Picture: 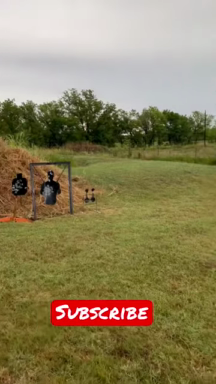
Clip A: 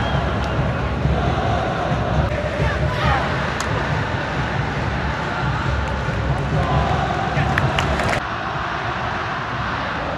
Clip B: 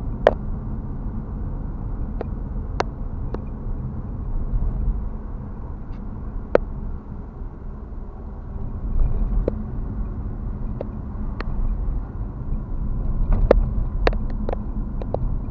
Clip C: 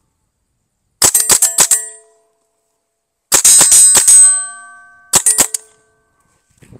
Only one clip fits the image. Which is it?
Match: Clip C